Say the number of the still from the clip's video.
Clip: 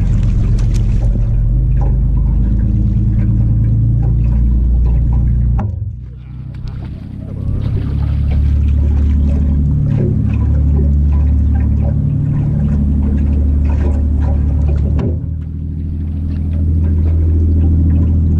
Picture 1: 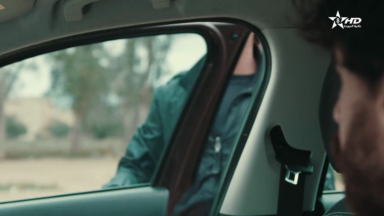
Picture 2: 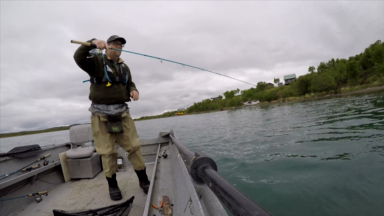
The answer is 2